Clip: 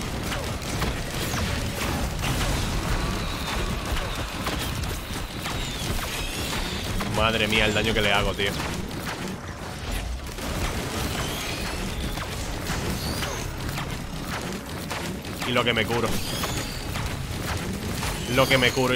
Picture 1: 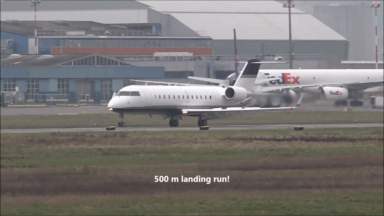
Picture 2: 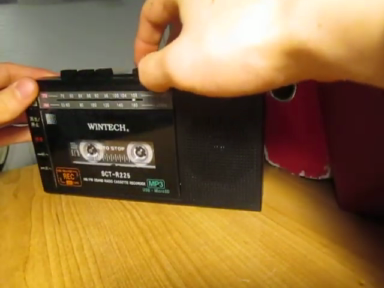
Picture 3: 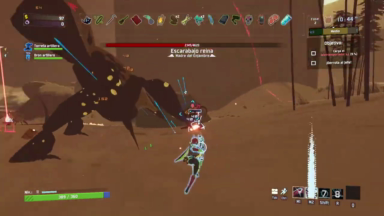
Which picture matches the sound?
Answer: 3